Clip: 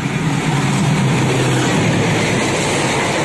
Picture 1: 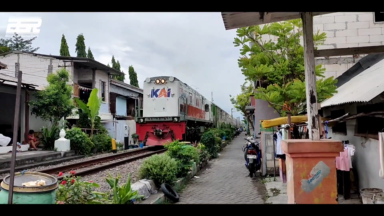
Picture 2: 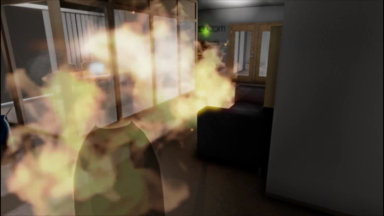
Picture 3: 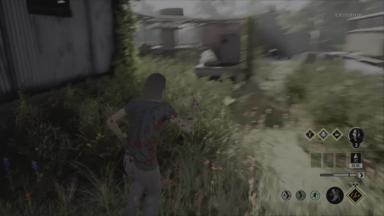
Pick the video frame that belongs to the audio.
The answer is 1